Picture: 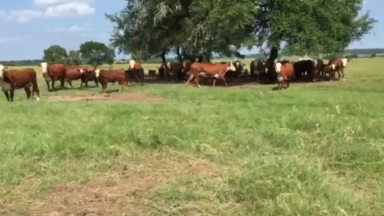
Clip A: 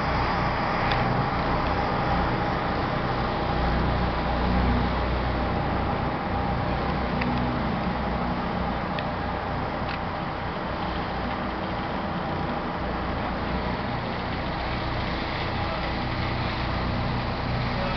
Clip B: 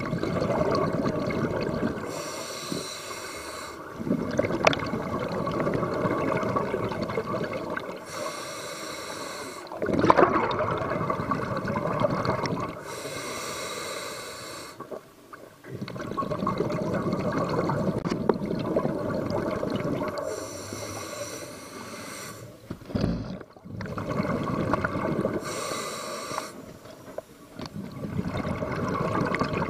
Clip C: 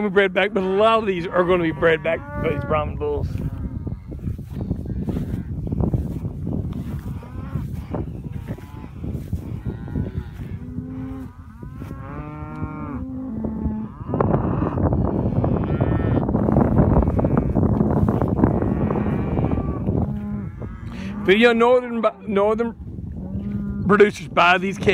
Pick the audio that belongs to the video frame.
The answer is C